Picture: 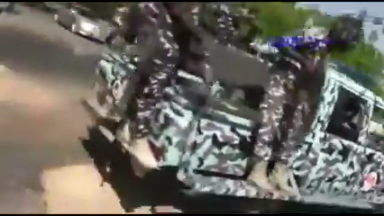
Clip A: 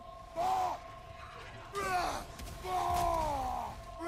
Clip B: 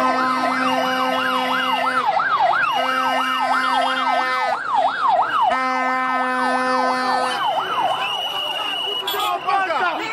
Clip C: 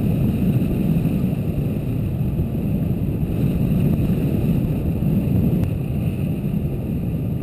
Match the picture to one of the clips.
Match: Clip B